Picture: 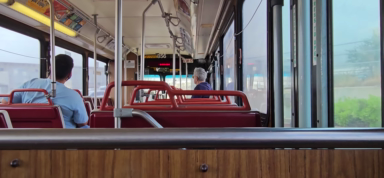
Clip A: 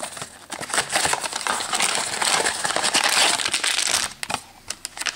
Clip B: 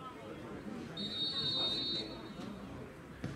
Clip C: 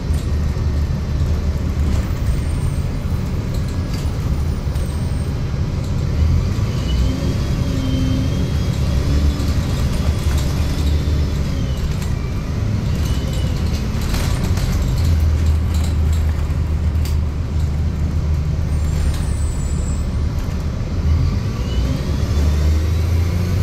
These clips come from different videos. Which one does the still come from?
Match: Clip C